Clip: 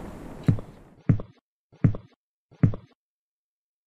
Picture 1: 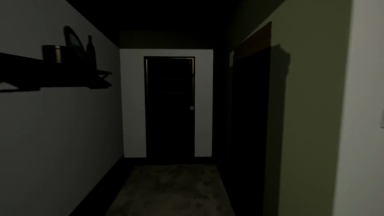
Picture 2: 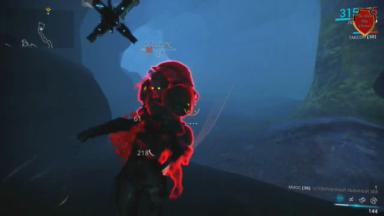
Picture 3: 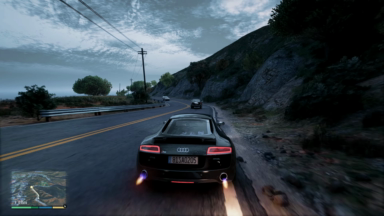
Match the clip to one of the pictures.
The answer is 1